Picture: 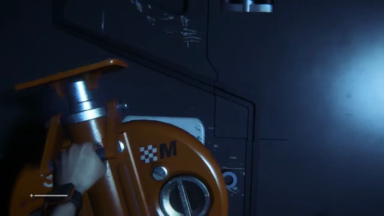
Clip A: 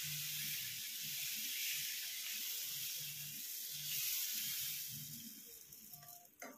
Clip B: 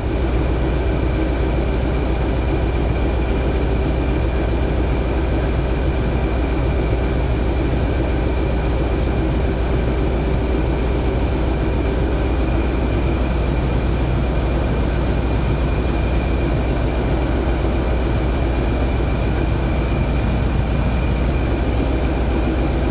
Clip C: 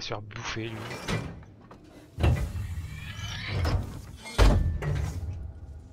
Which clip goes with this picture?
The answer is C